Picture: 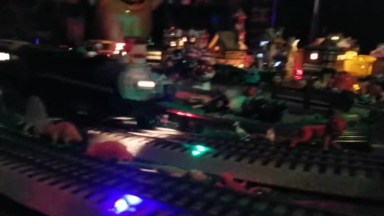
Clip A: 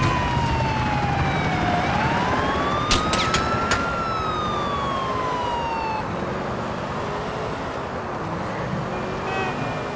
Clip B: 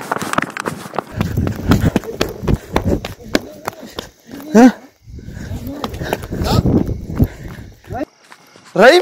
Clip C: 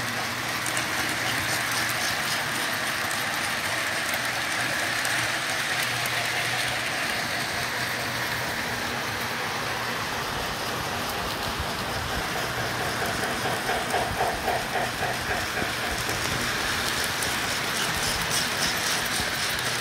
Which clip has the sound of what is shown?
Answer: C